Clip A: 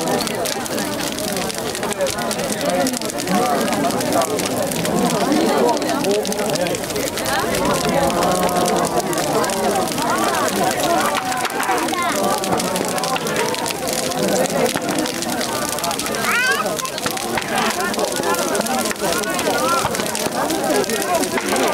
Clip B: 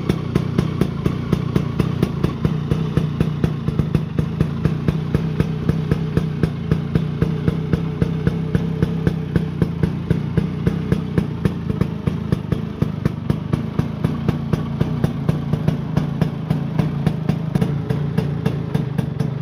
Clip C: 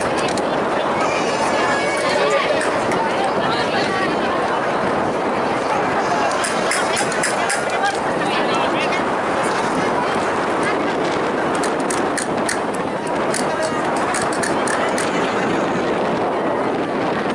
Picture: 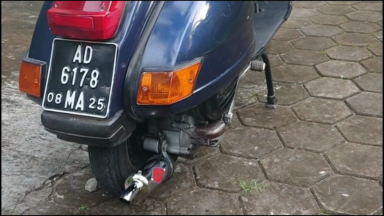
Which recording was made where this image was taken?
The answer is B